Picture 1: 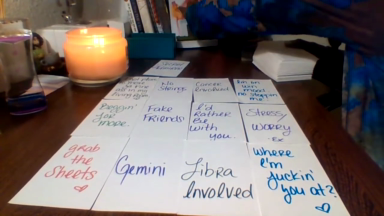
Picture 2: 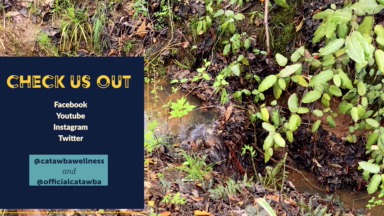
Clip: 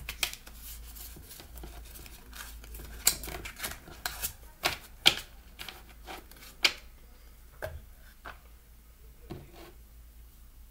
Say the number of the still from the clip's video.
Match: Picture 1